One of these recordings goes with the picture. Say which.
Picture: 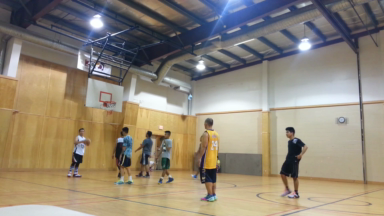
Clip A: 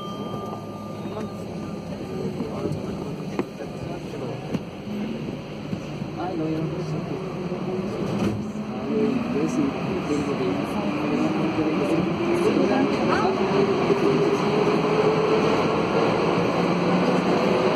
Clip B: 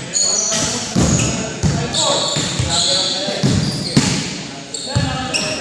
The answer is B